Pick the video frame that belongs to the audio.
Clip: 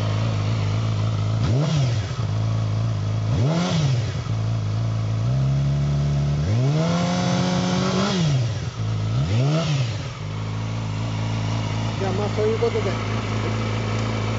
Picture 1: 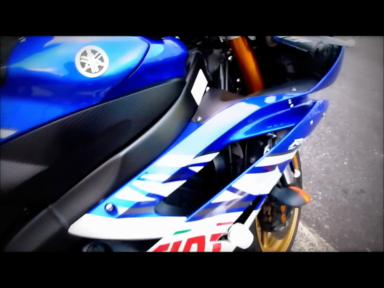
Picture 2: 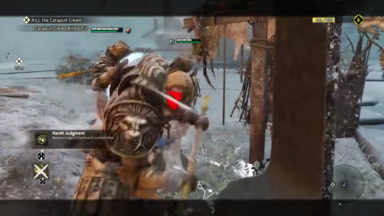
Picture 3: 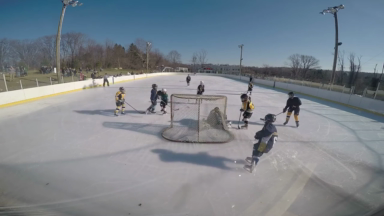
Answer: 1